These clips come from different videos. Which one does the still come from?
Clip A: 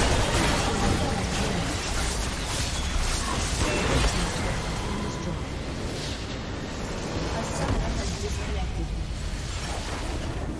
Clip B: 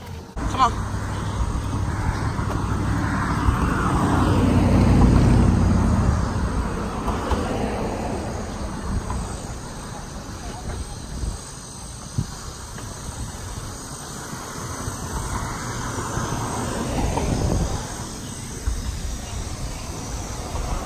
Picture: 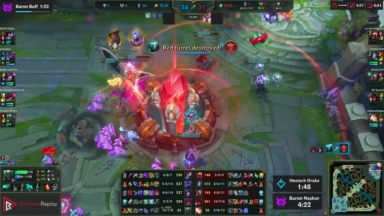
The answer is A